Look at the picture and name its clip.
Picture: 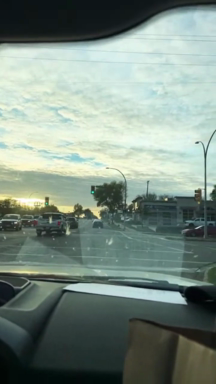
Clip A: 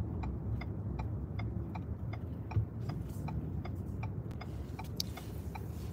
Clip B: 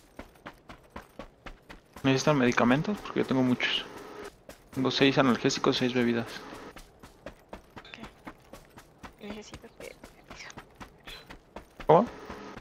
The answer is A